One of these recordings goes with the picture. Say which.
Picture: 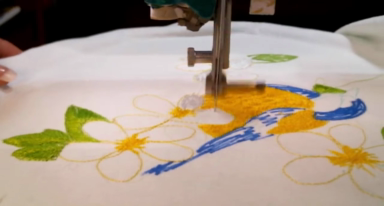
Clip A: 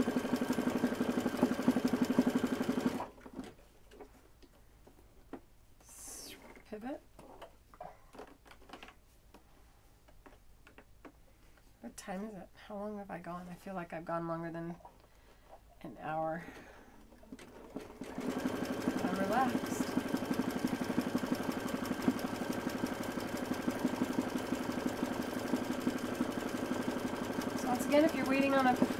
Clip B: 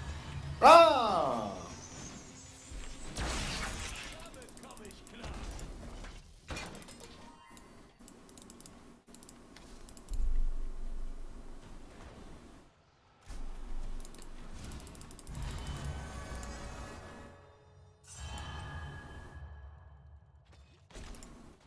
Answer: A